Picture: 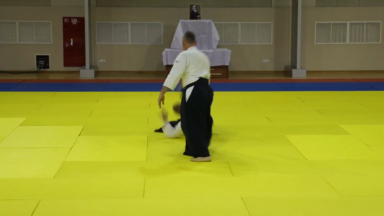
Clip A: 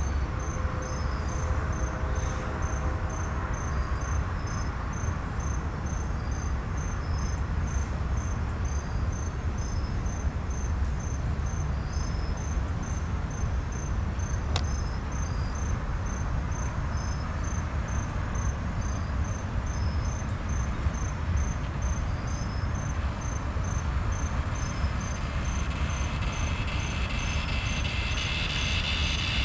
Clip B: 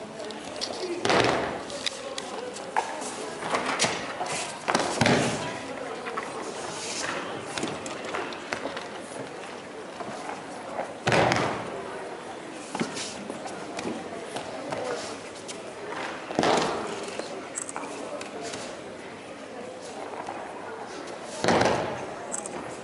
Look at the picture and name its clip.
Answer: B